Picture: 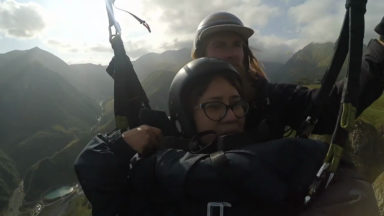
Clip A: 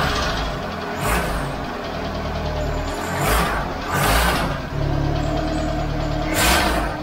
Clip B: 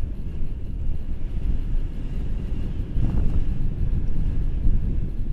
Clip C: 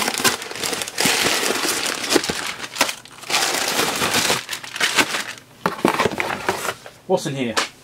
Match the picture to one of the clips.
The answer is B